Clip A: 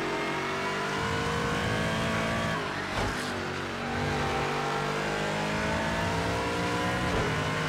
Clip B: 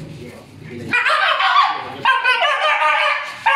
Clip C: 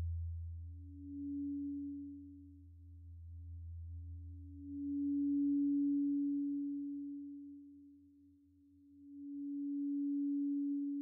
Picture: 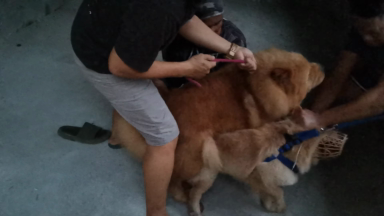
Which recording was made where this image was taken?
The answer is B